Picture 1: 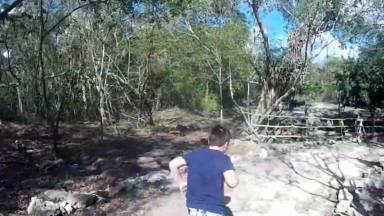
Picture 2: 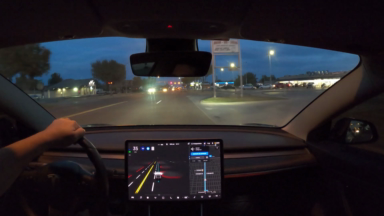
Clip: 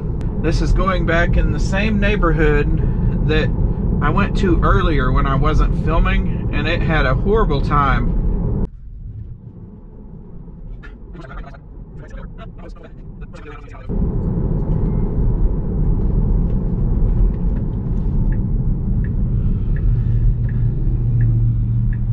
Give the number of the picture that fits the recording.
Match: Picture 2